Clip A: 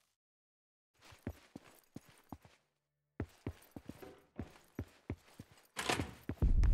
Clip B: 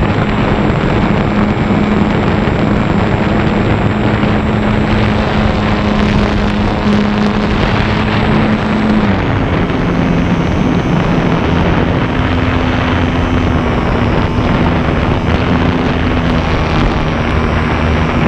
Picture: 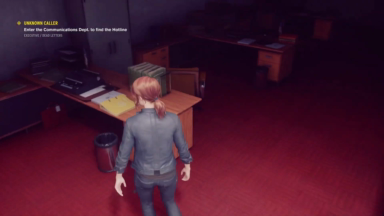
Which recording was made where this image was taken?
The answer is A